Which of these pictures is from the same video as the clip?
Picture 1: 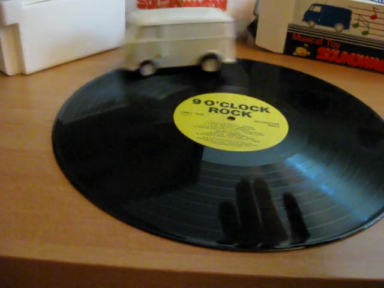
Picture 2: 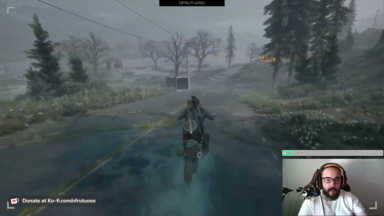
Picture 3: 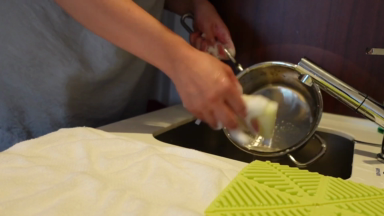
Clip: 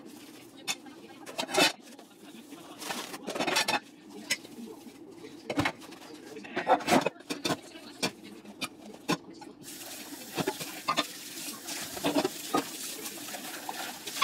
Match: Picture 3